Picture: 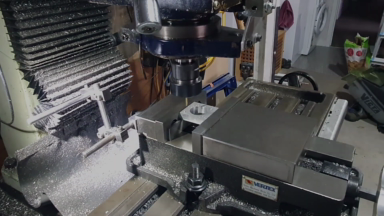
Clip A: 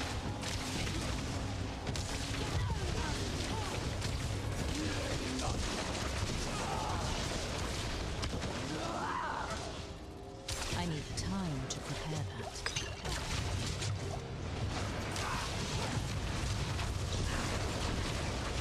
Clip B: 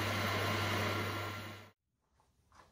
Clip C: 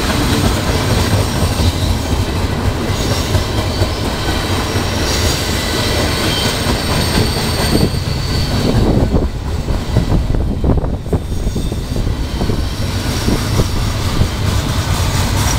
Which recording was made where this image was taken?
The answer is B